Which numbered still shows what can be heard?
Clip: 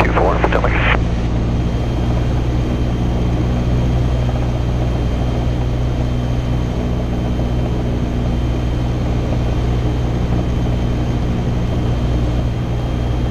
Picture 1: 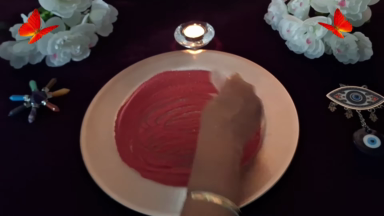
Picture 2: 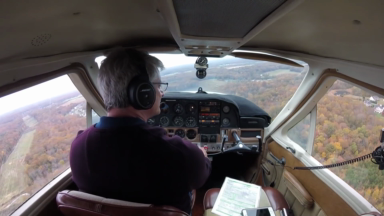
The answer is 2